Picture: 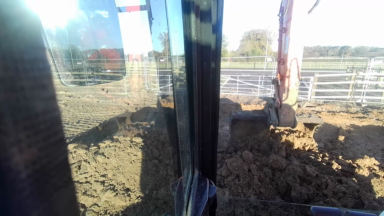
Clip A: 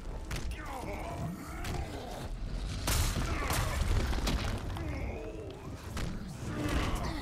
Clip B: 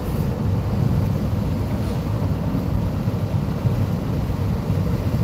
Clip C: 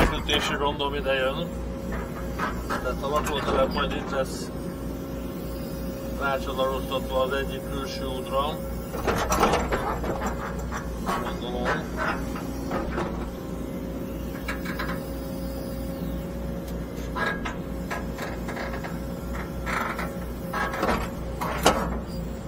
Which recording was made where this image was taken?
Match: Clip C